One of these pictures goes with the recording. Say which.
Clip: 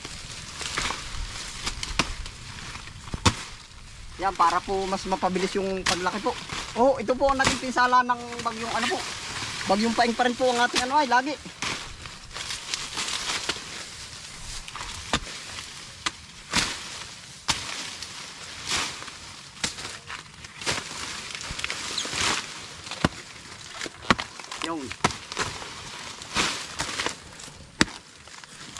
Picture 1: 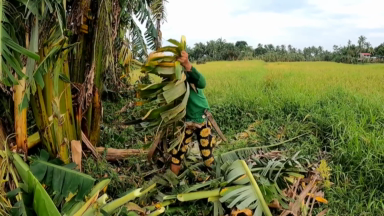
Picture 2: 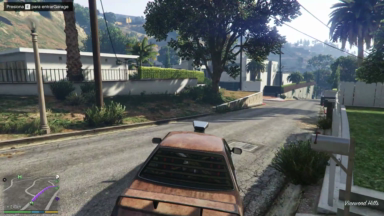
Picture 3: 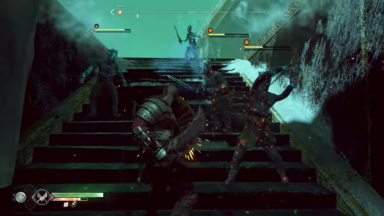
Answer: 1